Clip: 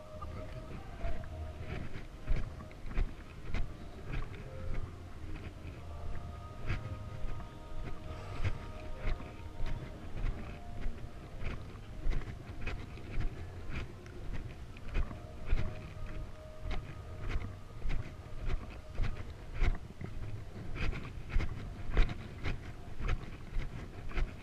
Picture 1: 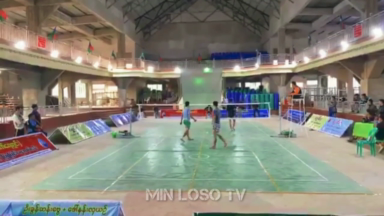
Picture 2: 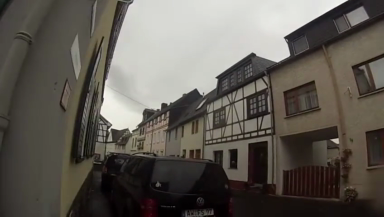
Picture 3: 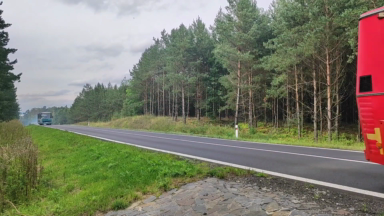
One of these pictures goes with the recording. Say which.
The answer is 2